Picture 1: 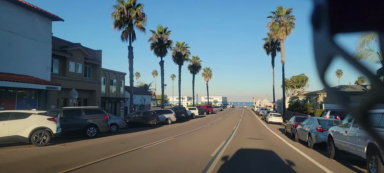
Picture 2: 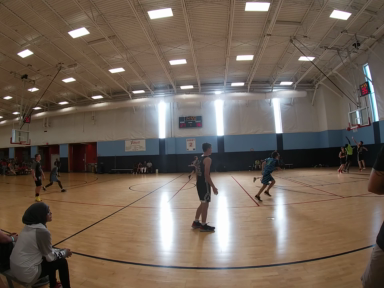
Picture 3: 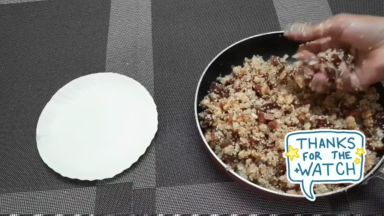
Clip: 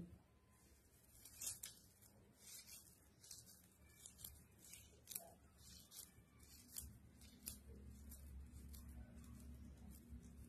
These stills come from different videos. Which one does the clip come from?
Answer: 3